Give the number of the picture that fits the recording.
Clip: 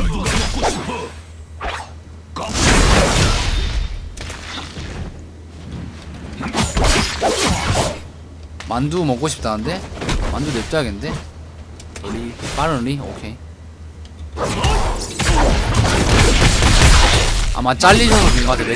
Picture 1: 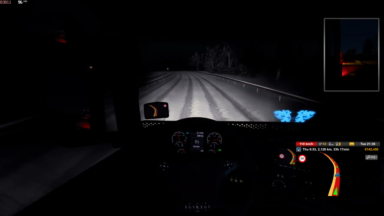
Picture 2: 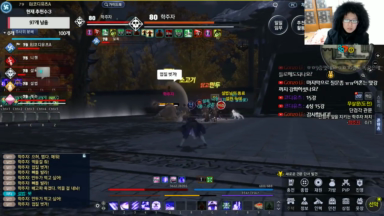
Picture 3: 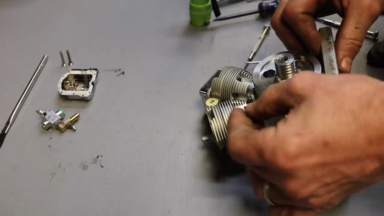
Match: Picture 2